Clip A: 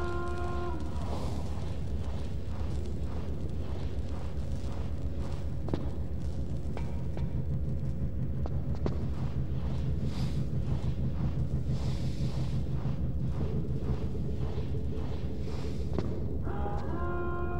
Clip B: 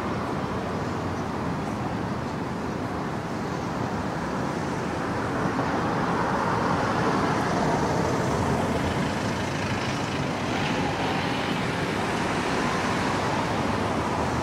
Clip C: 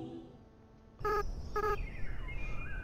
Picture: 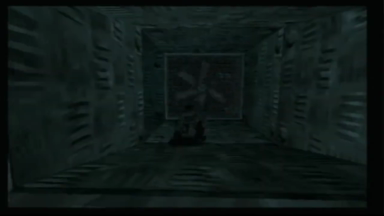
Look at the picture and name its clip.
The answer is A